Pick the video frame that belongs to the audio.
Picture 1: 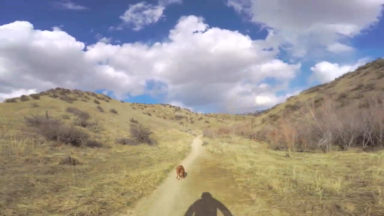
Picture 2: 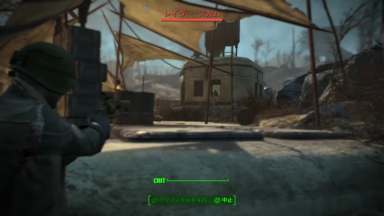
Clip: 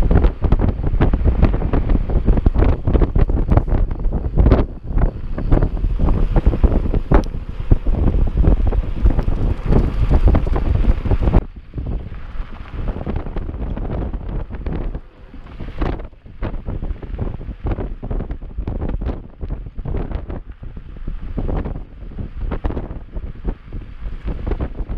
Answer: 1